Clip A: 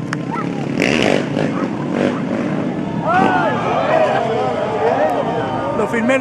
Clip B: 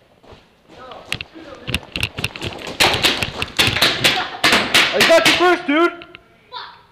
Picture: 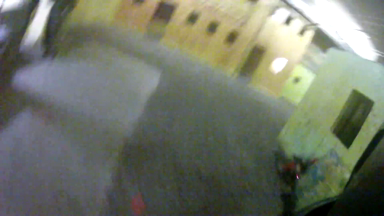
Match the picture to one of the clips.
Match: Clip B